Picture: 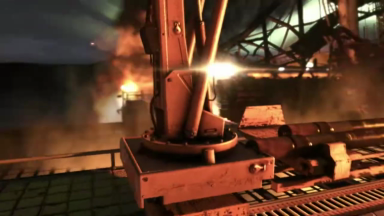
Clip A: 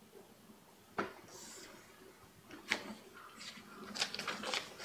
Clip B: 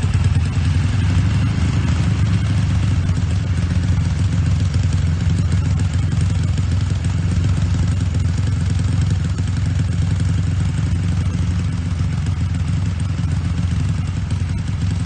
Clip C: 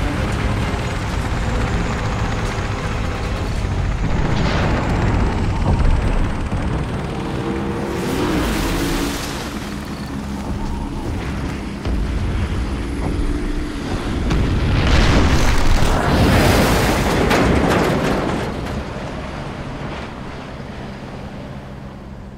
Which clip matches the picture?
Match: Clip C